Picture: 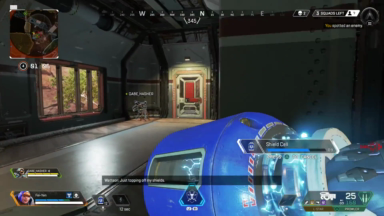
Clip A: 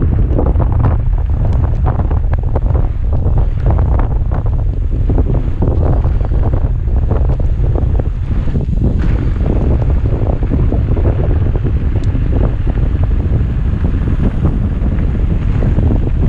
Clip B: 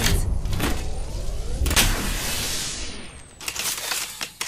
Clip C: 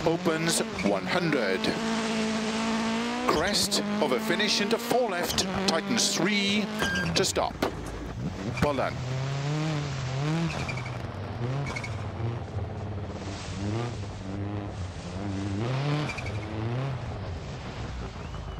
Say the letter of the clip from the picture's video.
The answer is B